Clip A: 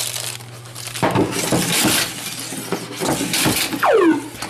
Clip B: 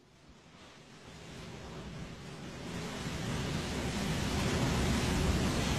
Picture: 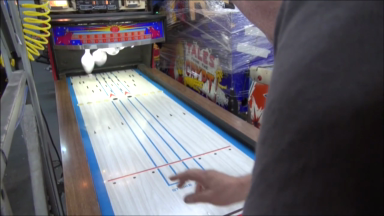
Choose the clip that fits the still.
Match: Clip A